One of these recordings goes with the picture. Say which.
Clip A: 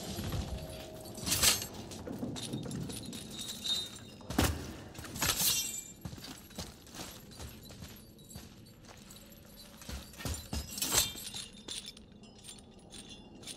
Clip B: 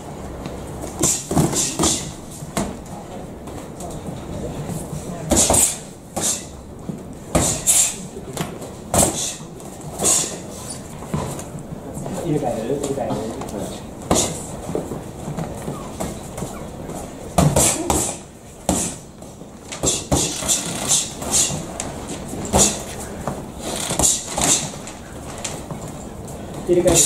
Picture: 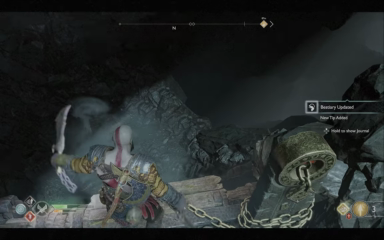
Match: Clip A